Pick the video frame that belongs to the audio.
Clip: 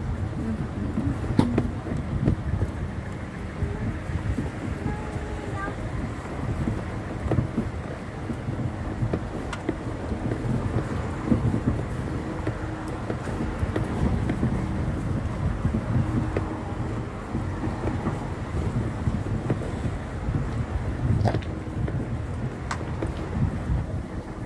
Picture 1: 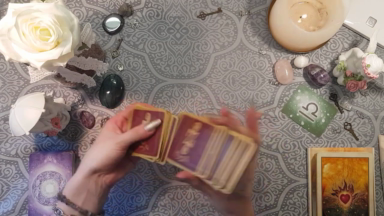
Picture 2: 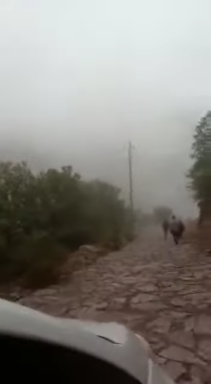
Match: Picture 2